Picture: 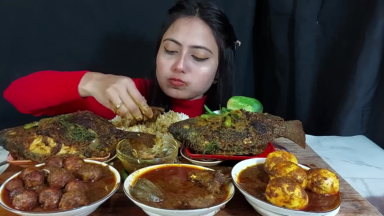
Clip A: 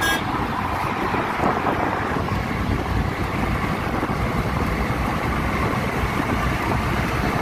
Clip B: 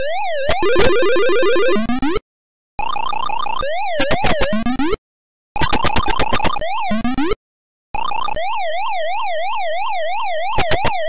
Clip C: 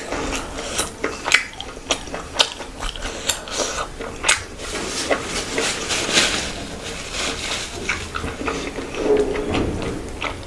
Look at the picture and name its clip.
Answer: C